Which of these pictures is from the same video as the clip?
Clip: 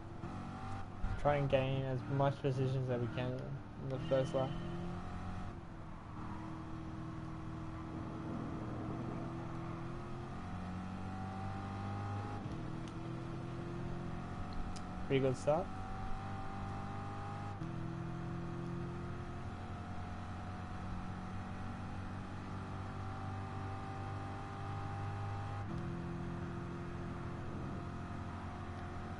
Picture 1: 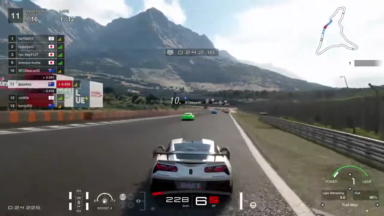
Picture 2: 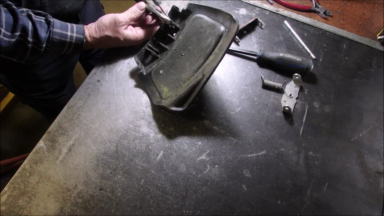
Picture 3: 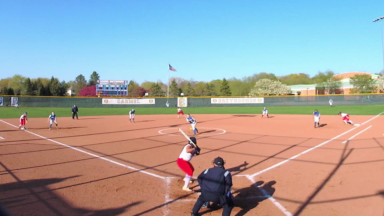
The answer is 1